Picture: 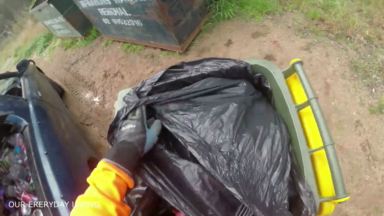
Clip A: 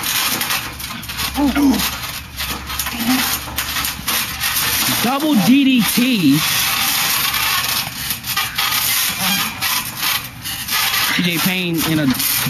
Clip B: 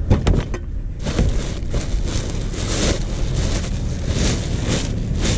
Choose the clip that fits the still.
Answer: B